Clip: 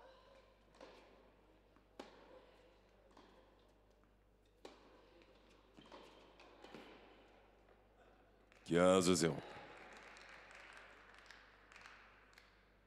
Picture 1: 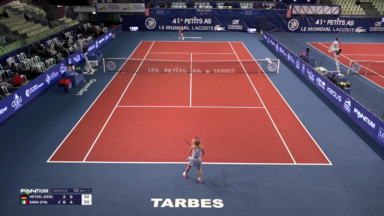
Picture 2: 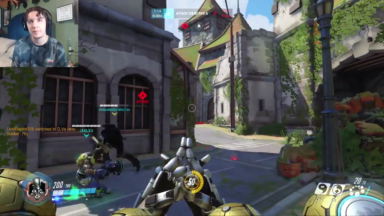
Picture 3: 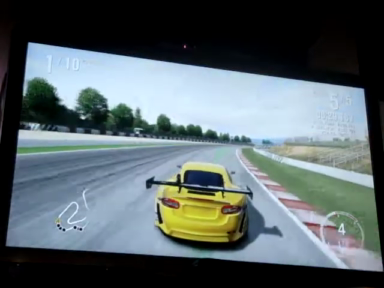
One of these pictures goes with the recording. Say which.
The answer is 1